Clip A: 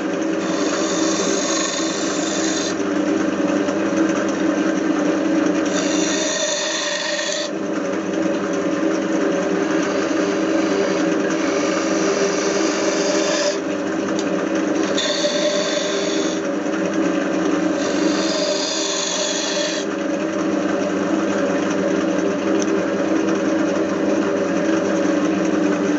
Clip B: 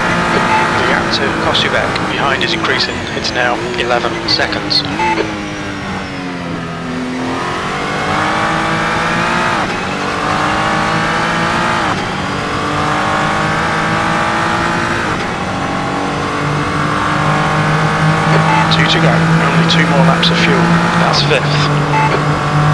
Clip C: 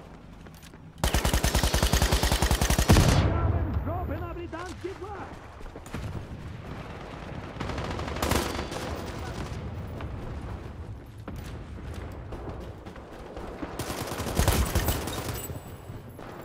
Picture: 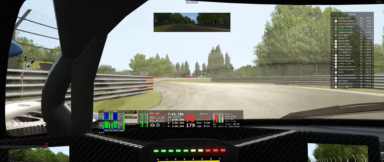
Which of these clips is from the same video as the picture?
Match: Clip B